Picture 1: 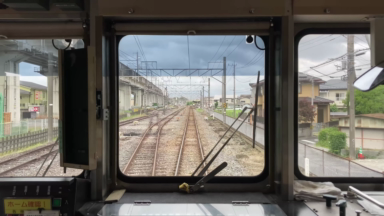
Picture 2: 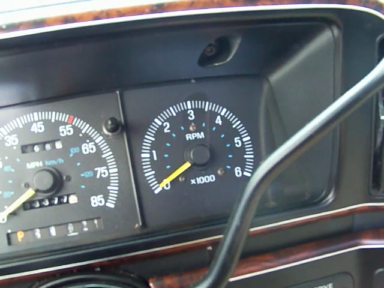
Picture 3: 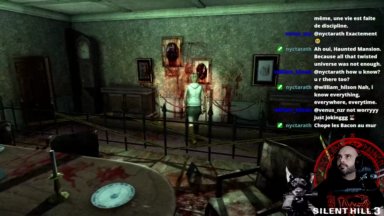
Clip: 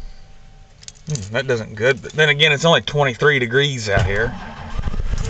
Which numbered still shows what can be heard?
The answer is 2